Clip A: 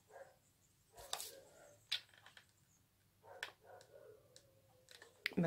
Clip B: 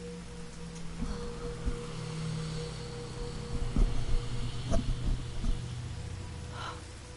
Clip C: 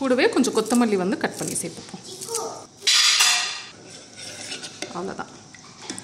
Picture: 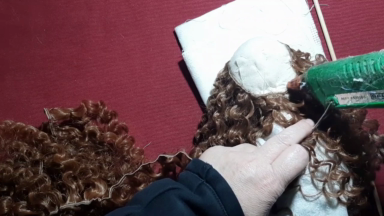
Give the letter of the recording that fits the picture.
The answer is A